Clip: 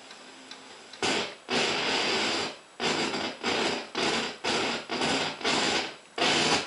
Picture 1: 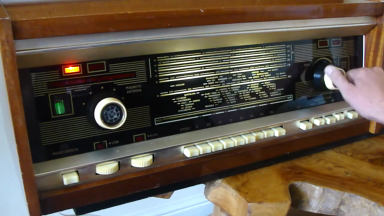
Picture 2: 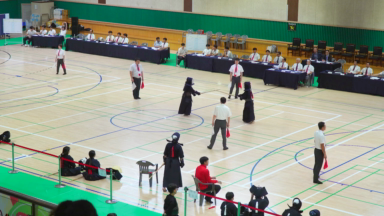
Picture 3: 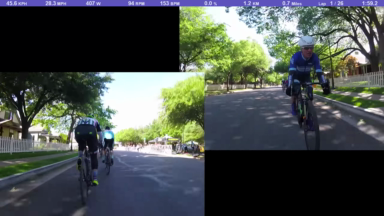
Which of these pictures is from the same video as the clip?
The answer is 1